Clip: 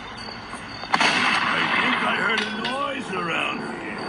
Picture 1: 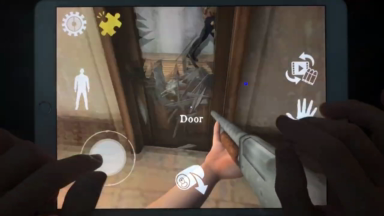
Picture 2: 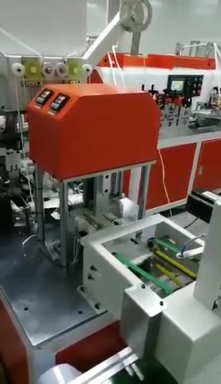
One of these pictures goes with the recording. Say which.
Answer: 1